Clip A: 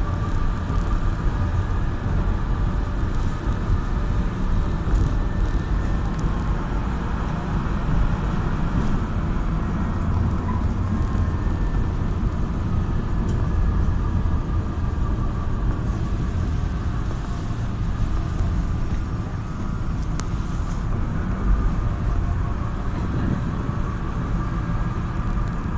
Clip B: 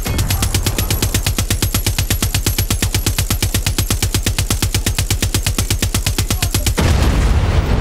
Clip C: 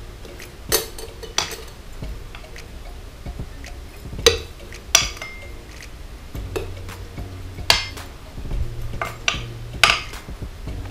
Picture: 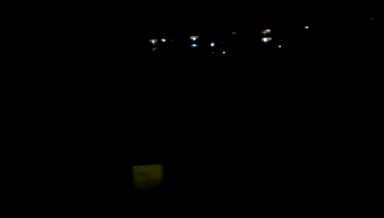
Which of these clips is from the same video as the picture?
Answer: A